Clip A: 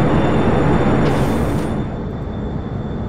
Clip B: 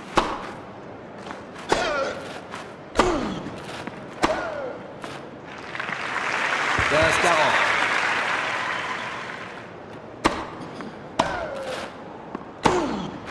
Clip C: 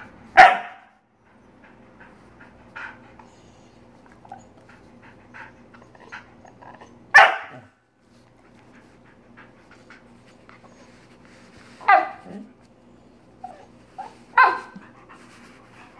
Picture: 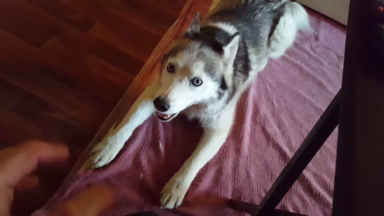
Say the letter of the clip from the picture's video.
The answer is C